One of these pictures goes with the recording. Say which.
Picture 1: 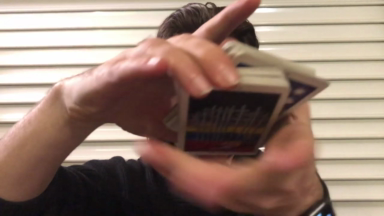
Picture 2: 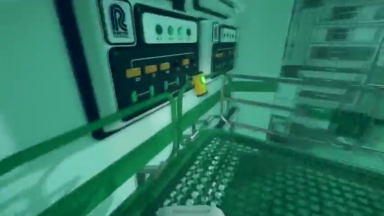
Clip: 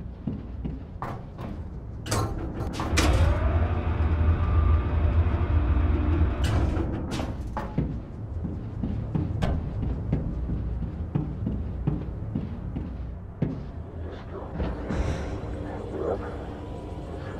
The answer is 2